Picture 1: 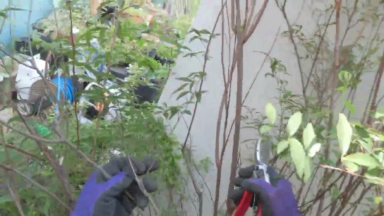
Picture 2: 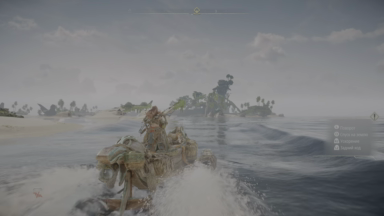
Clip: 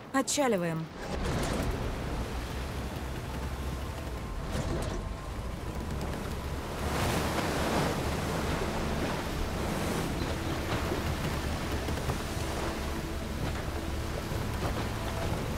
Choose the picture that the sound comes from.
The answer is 2